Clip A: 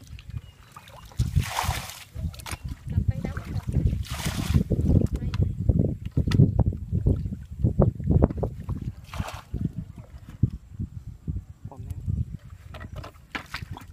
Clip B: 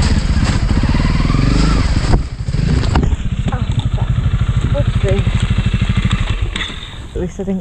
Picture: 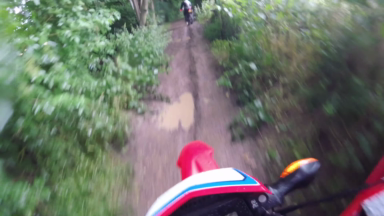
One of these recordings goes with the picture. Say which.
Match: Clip B